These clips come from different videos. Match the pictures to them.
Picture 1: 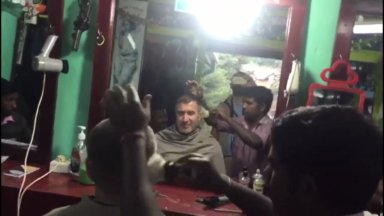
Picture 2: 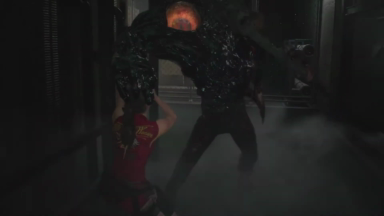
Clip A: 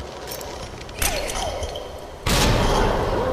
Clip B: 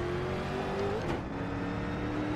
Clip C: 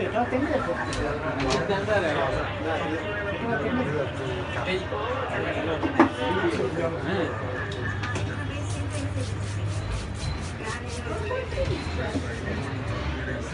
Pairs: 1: C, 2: A